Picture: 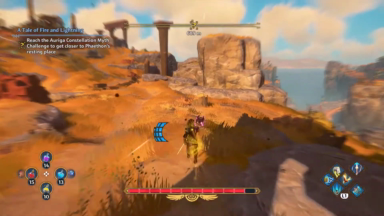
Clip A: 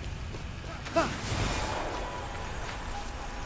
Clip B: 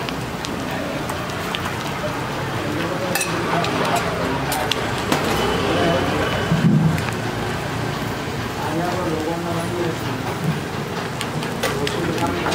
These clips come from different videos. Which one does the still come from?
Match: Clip A